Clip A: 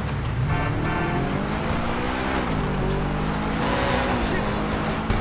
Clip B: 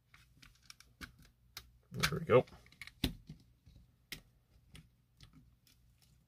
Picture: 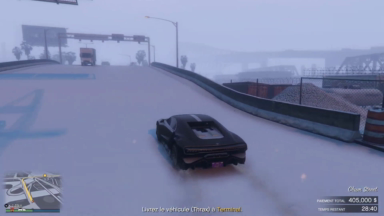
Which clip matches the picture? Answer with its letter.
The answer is A